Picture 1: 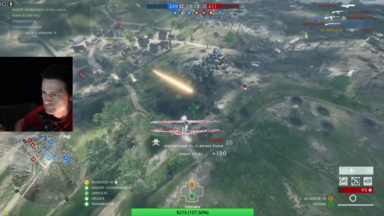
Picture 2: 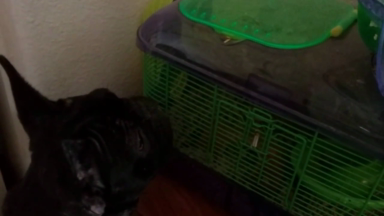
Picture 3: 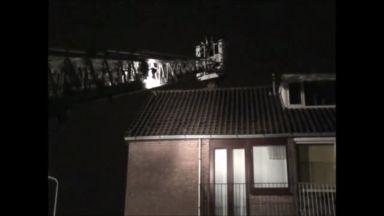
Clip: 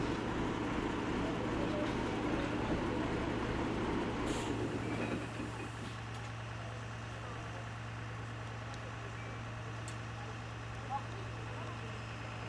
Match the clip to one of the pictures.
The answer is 3